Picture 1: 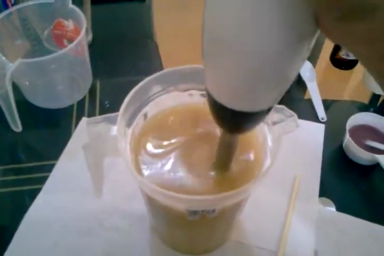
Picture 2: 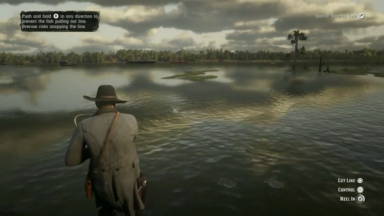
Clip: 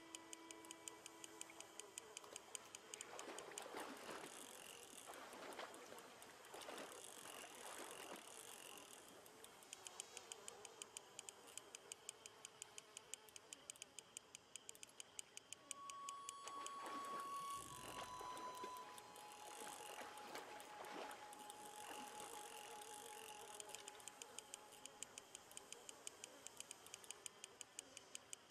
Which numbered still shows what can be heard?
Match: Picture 2